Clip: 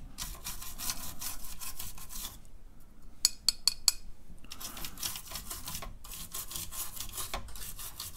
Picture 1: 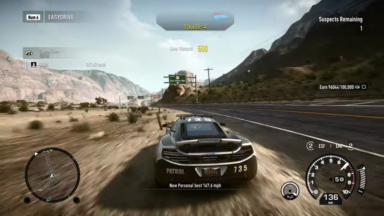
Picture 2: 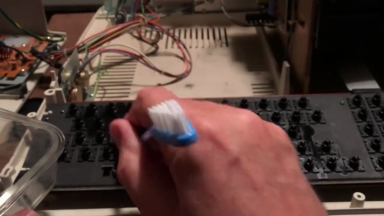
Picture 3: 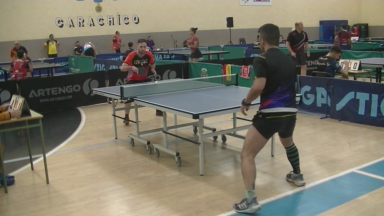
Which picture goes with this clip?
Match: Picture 2